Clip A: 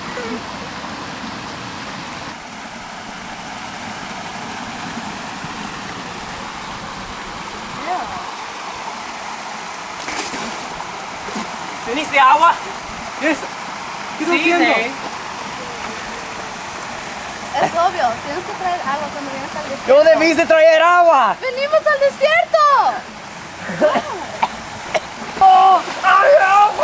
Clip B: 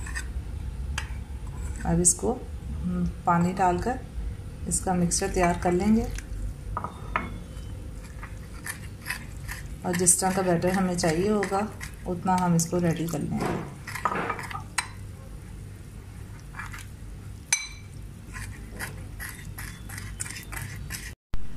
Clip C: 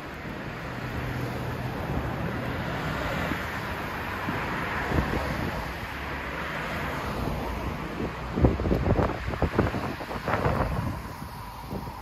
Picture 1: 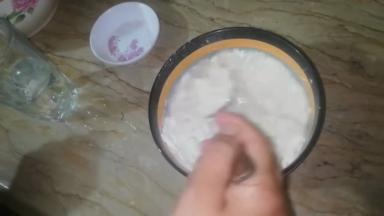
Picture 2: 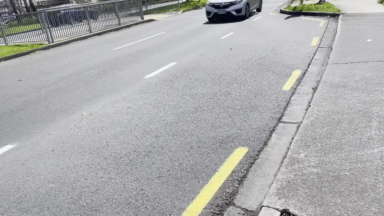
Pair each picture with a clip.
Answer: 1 B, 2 C